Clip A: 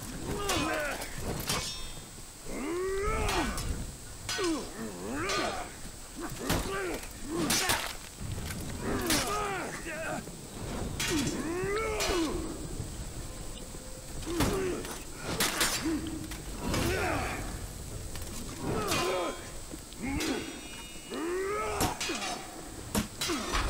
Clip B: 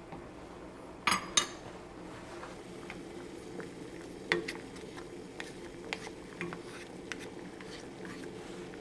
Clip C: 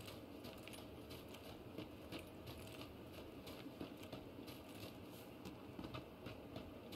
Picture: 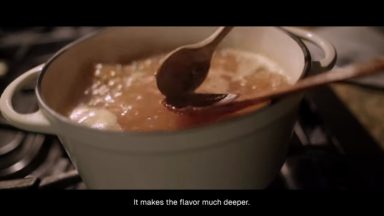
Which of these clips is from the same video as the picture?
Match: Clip B